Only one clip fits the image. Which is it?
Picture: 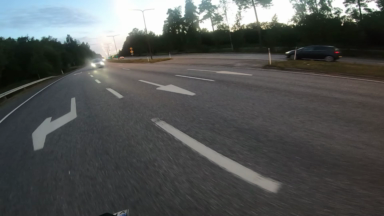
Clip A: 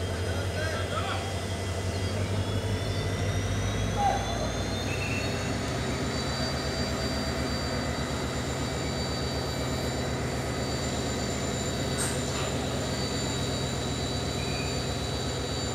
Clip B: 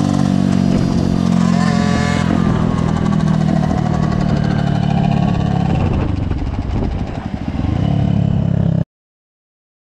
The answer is B